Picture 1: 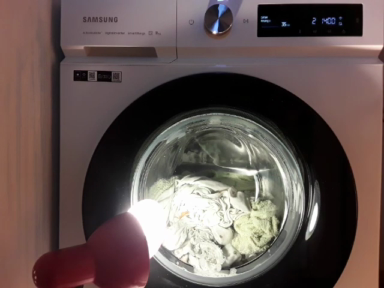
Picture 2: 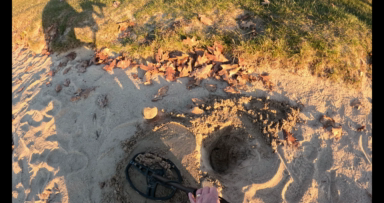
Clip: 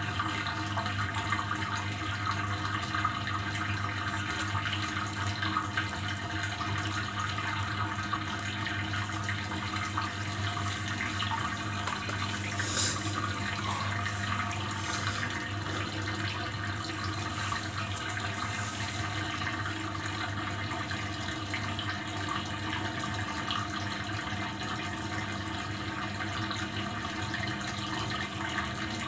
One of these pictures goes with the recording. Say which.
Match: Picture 1